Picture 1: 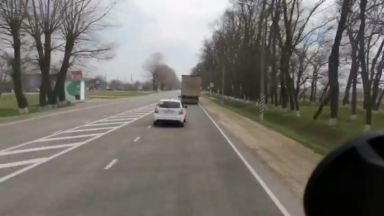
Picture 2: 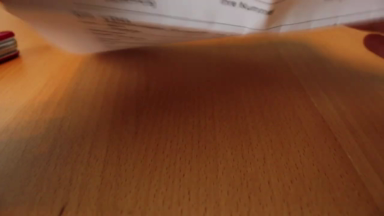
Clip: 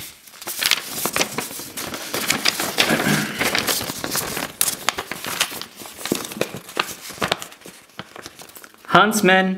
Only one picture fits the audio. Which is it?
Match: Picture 2